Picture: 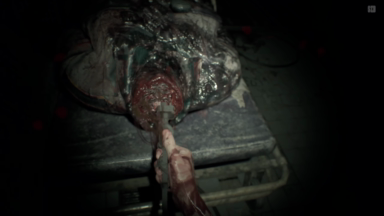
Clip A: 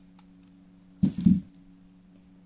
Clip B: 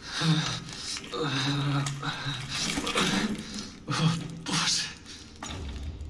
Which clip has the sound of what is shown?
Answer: B